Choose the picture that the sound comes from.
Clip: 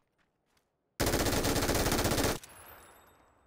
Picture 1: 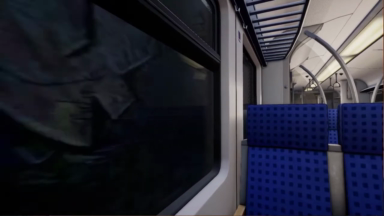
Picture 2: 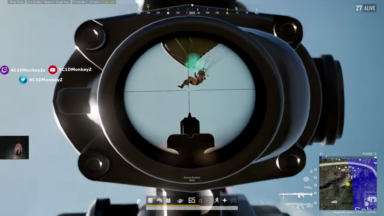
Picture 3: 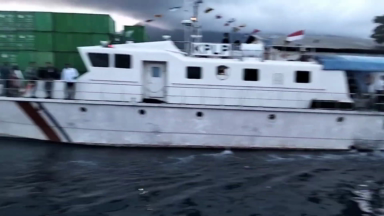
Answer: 2